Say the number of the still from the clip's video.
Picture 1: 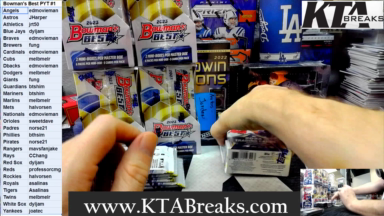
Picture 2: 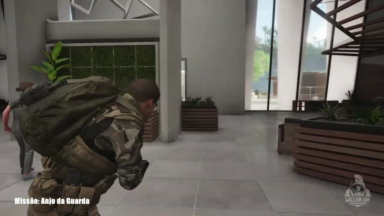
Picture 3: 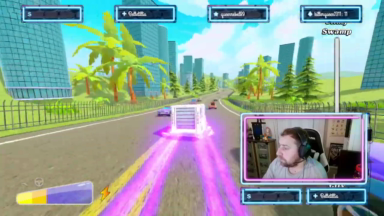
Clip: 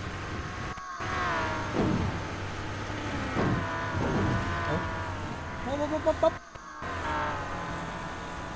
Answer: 3